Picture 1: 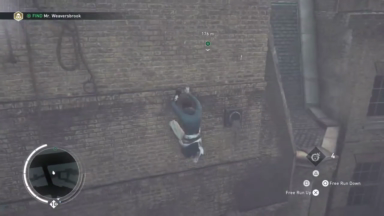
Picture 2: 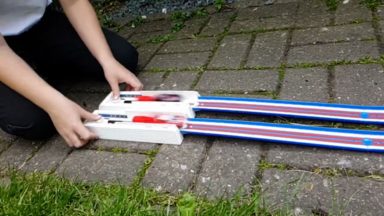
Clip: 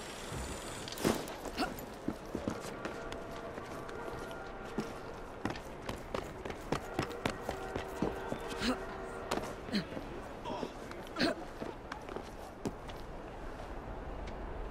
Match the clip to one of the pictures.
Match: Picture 1